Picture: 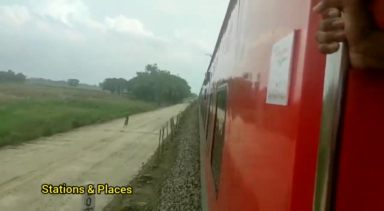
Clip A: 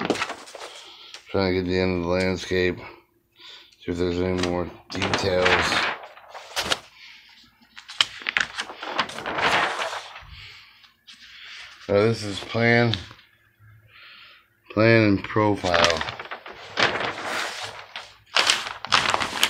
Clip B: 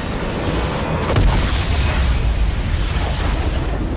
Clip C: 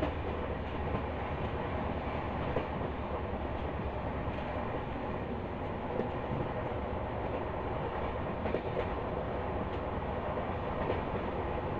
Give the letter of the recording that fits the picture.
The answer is C